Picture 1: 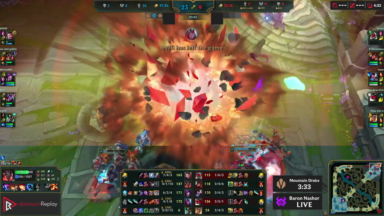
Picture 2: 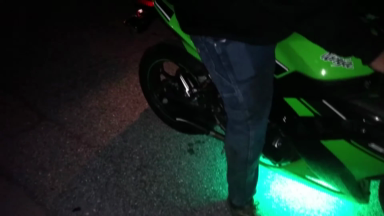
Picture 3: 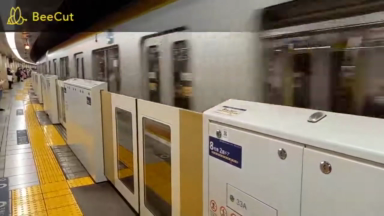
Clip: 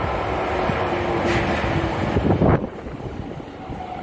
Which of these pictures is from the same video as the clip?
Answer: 3